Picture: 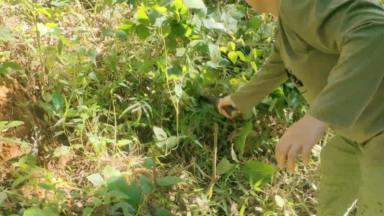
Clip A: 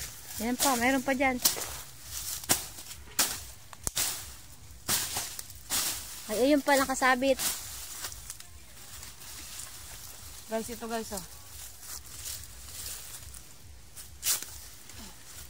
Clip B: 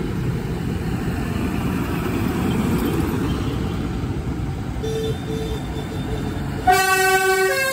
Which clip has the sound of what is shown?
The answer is A